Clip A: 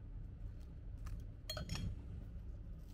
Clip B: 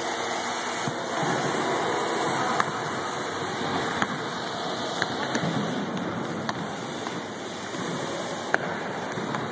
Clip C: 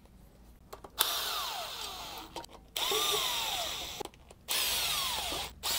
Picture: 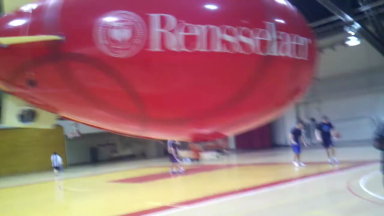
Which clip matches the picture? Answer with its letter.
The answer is B